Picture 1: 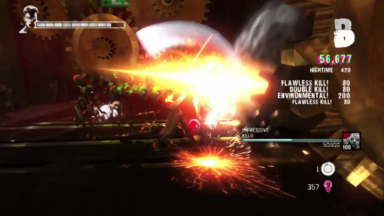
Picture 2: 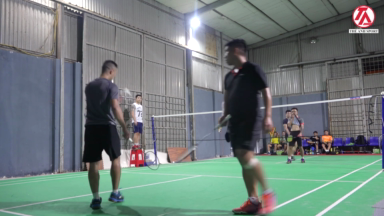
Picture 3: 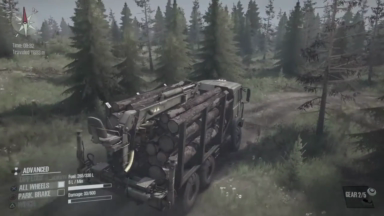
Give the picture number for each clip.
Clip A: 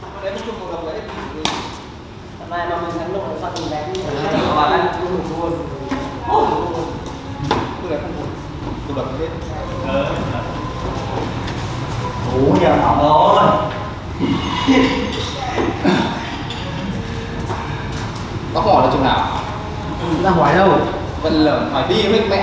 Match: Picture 2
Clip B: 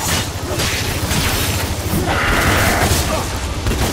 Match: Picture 1